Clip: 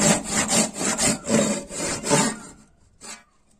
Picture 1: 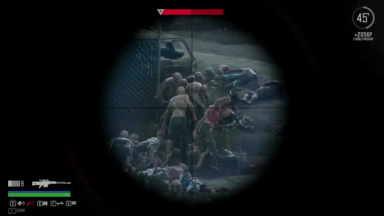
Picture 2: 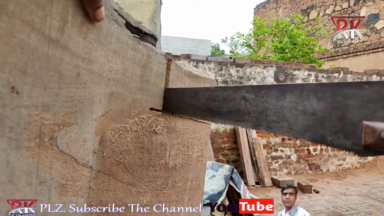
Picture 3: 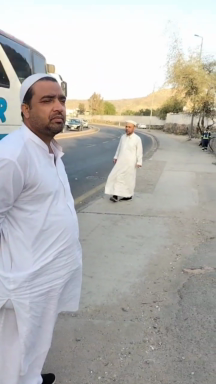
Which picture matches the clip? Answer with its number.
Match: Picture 2